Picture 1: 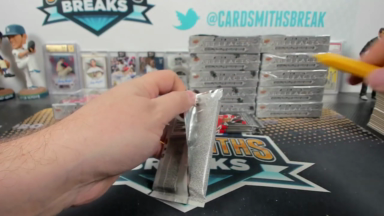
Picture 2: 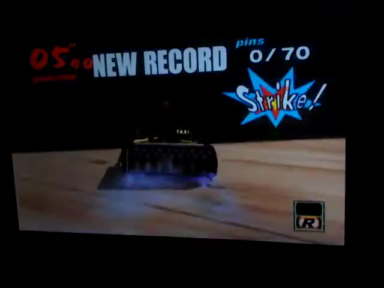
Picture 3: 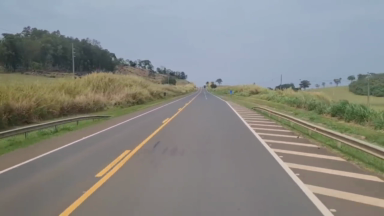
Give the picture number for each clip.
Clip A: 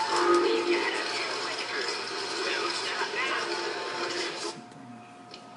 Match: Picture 2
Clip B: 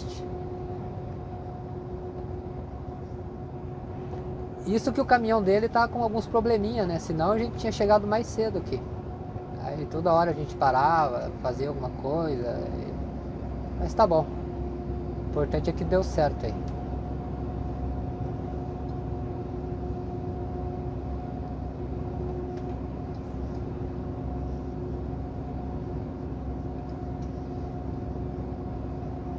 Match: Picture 3